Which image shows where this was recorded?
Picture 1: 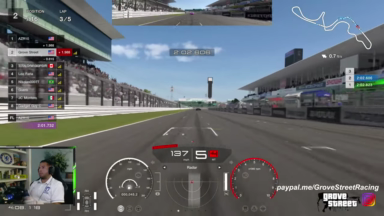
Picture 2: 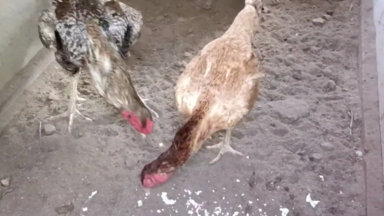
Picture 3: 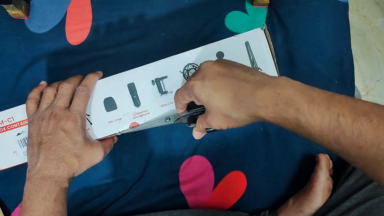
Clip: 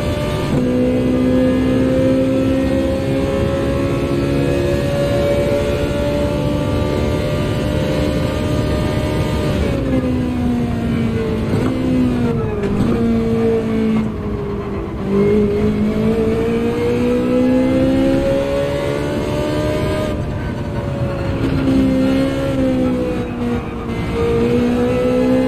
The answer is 1